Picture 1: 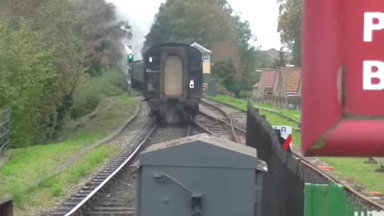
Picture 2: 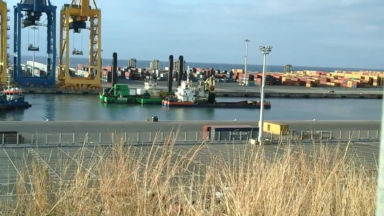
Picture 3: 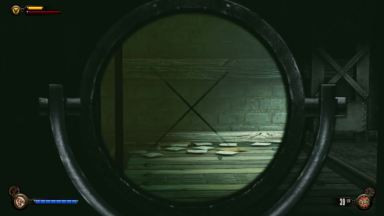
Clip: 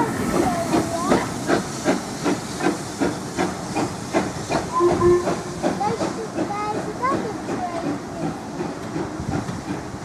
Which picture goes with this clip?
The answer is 1